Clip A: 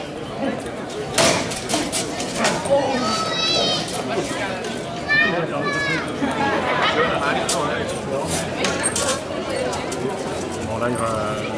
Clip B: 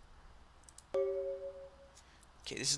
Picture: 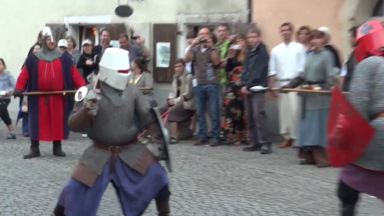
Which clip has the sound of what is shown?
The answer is A